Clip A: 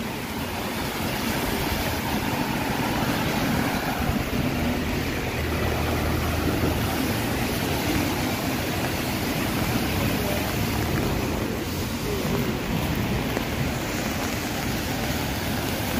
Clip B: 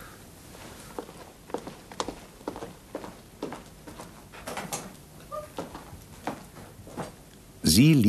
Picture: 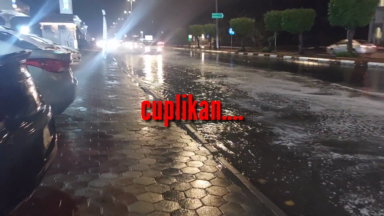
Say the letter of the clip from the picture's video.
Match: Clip A